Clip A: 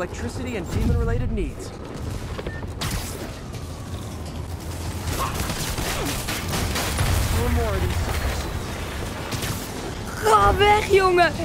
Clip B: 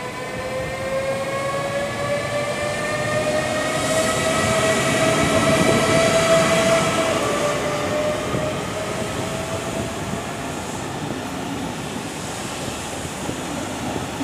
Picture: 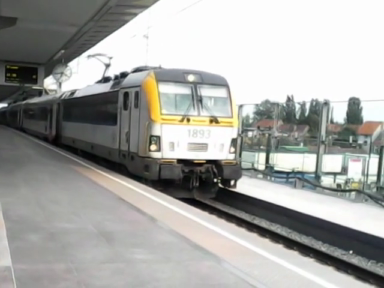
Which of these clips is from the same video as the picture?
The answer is B